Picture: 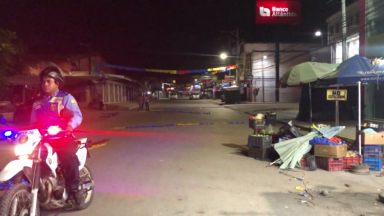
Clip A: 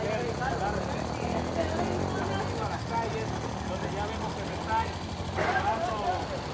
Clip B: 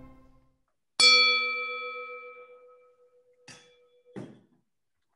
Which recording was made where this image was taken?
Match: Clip A